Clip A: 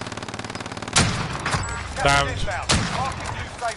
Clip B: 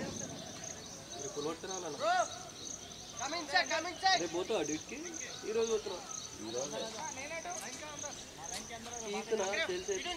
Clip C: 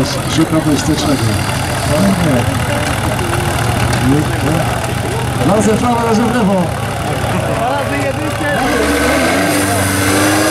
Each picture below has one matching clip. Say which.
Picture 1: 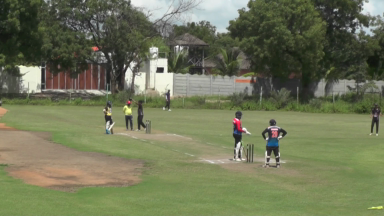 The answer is B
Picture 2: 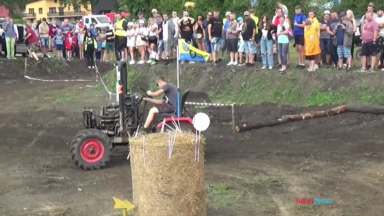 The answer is C